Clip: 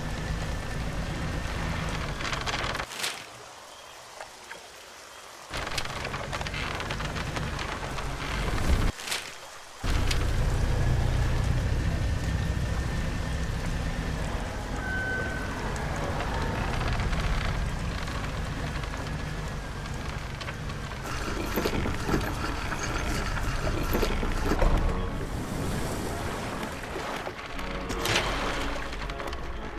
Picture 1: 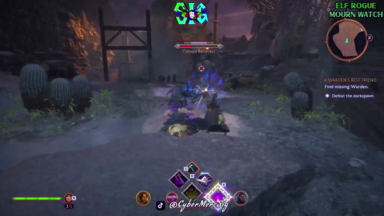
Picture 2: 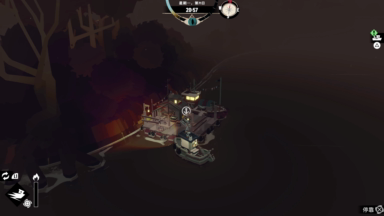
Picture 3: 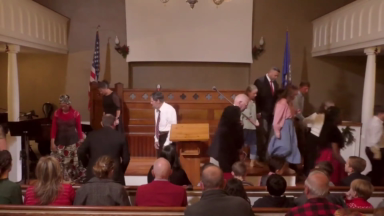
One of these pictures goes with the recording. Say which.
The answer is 2